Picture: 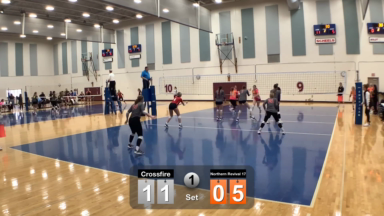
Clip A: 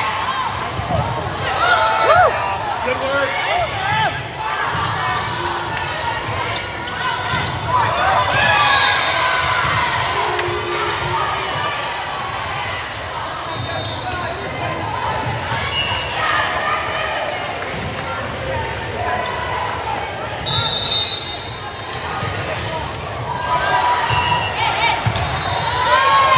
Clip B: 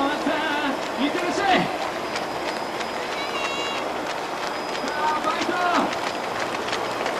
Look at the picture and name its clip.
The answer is A